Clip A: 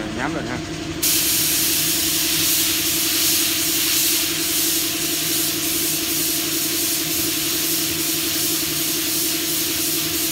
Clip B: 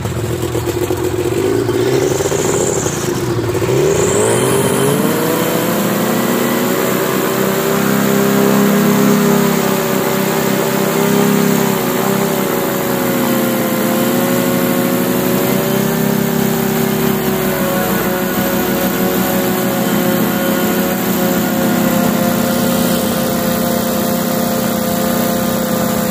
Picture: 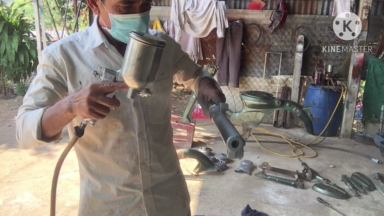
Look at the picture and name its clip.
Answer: A